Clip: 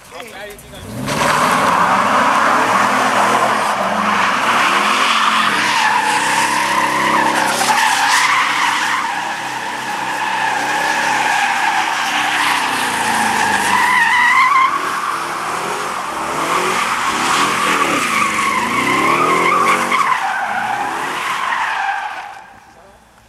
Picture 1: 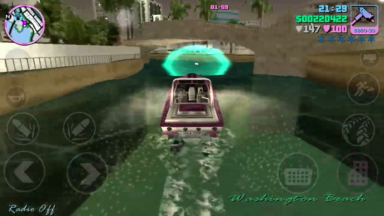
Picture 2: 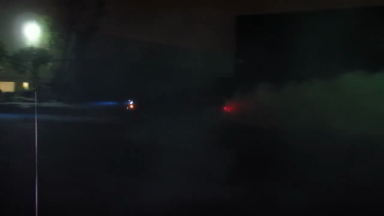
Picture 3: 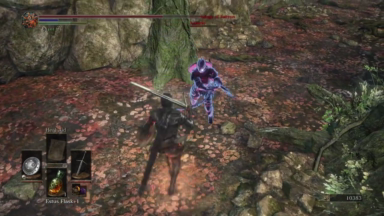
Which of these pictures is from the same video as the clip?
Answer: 2